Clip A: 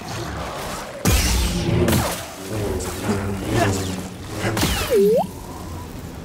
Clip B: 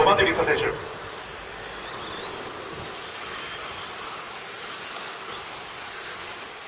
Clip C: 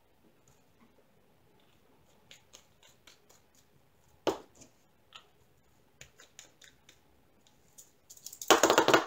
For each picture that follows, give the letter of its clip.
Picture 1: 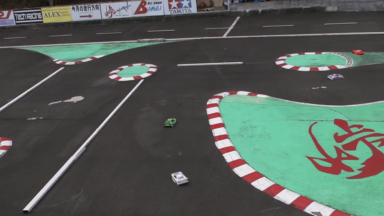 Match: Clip B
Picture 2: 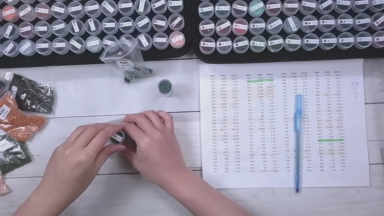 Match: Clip C